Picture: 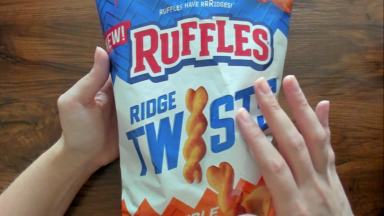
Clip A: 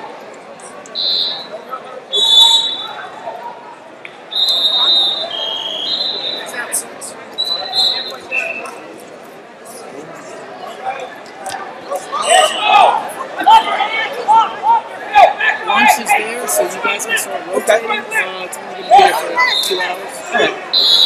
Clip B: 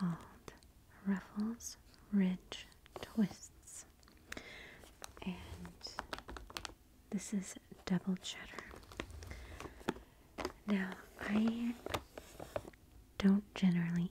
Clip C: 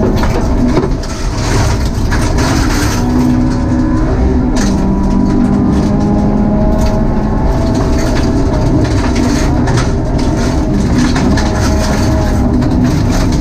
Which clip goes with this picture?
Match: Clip B